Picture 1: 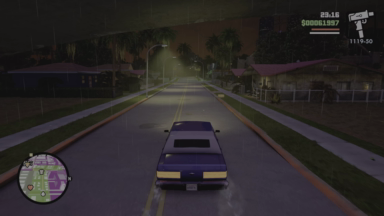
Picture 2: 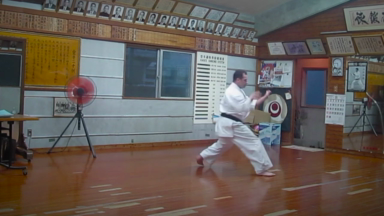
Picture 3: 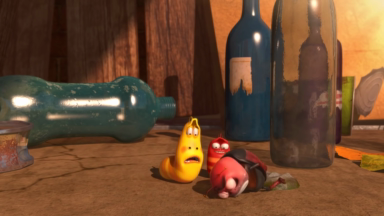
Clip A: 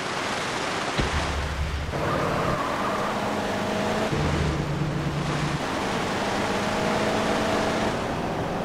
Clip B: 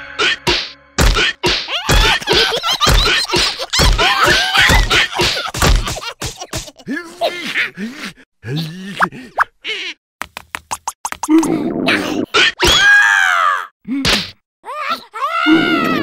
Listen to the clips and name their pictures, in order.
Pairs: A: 1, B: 3